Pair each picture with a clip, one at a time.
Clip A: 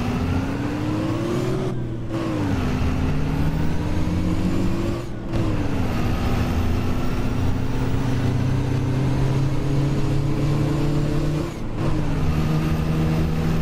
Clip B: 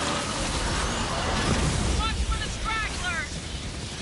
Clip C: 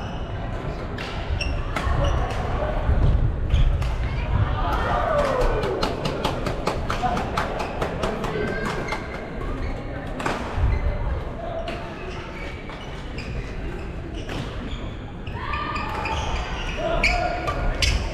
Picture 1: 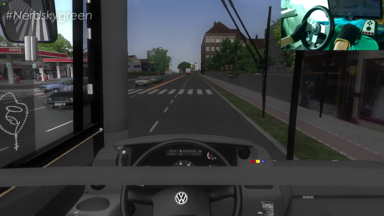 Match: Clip A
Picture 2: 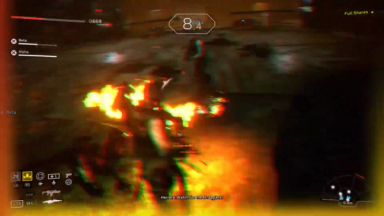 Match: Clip B